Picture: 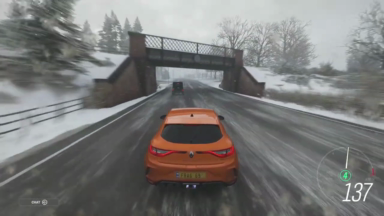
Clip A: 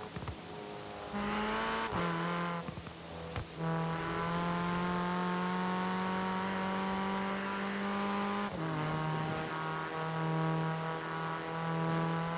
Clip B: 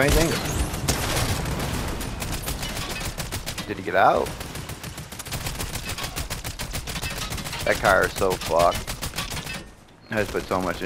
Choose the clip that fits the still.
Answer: A